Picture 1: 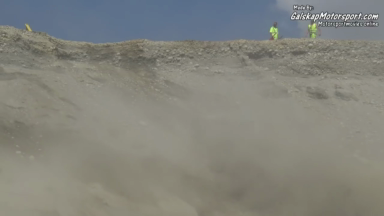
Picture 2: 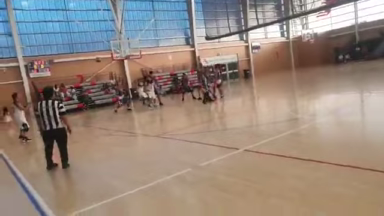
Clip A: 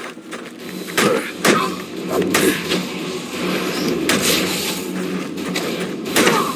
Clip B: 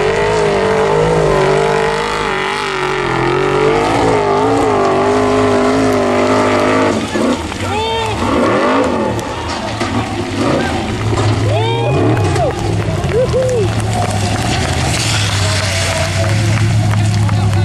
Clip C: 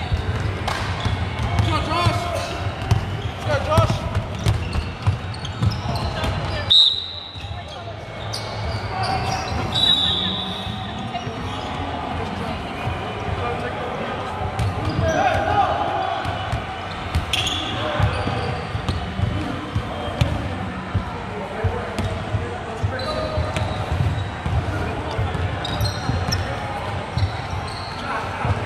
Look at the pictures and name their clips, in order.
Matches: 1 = B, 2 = C